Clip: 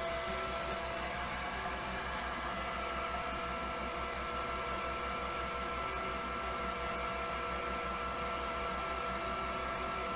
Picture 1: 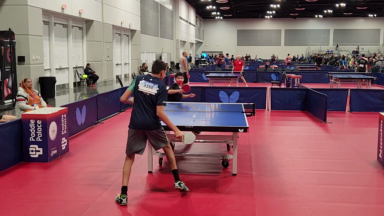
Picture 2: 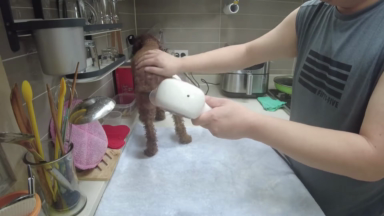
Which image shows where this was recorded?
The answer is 2